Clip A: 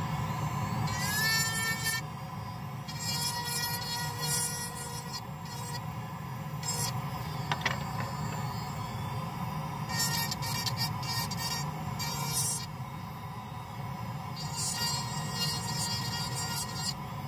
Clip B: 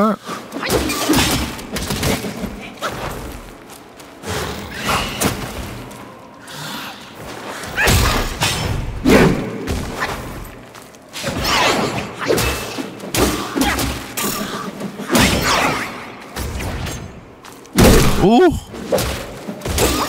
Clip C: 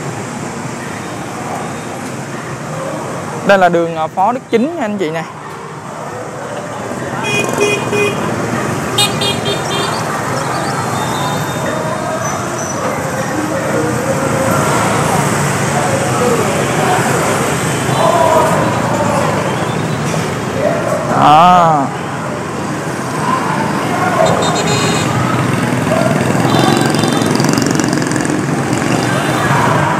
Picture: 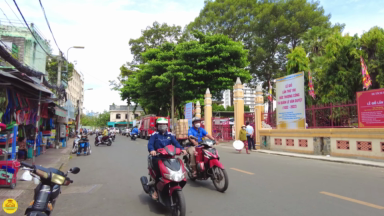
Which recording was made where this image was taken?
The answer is C